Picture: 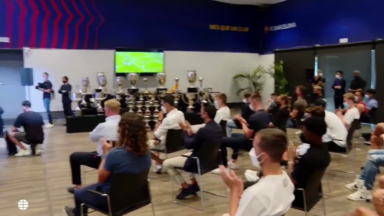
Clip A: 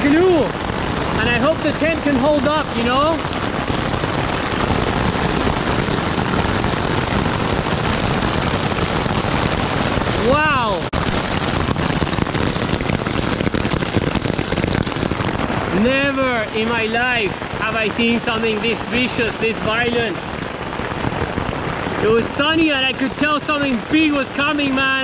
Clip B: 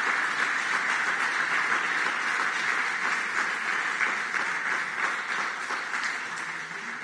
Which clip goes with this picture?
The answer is B